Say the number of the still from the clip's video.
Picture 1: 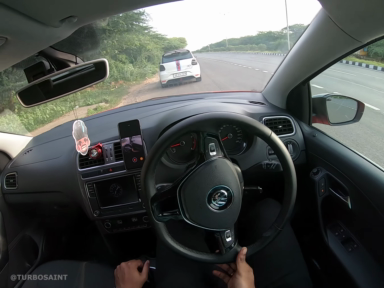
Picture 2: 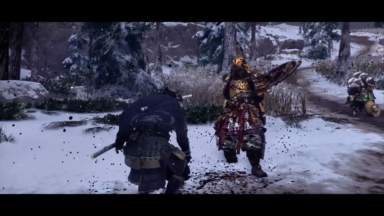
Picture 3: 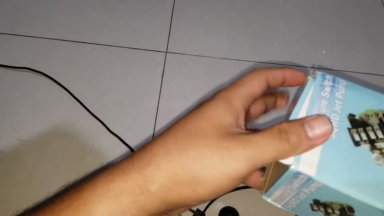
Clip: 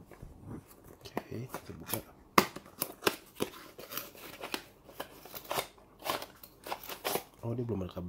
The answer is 3